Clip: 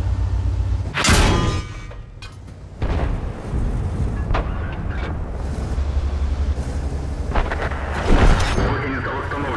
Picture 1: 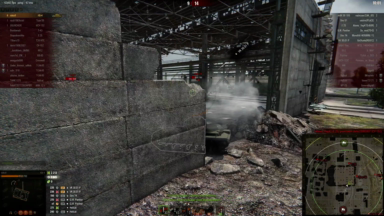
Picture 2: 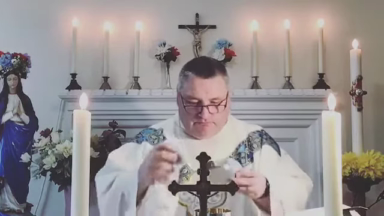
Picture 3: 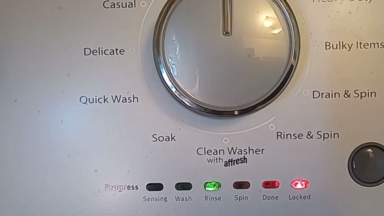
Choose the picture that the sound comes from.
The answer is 1